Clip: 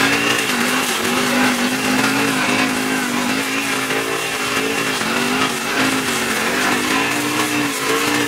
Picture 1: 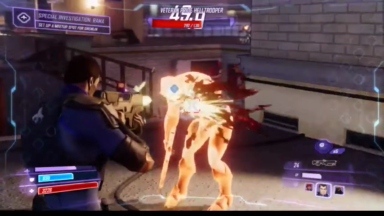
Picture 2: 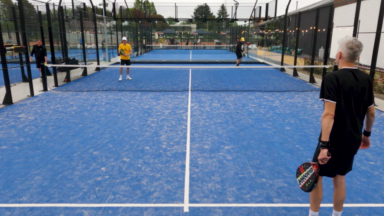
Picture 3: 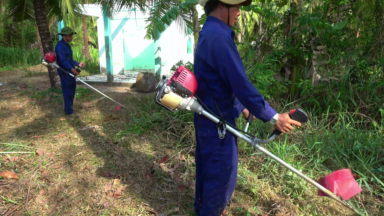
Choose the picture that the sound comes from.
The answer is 3